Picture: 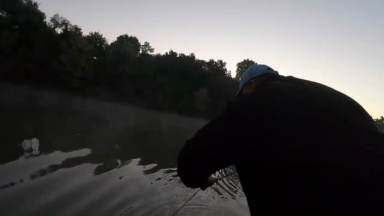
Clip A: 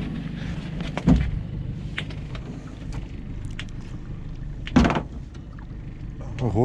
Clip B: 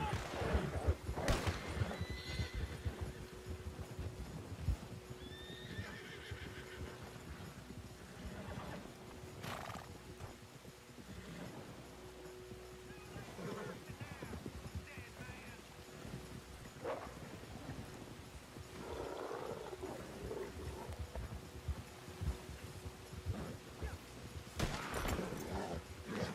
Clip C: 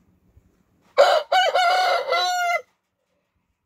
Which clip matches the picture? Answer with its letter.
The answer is A